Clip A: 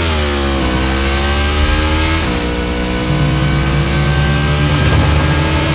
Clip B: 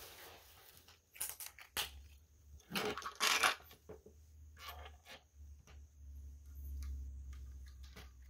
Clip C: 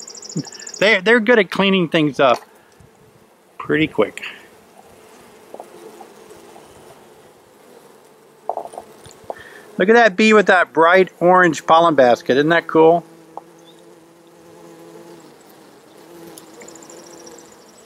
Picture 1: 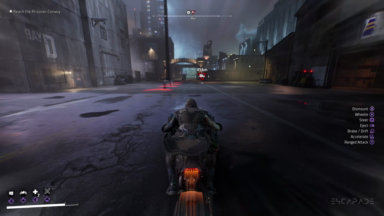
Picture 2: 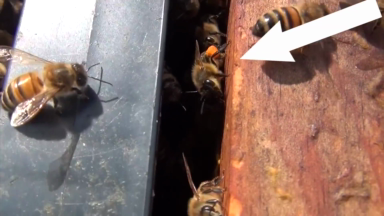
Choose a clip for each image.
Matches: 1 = A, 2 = C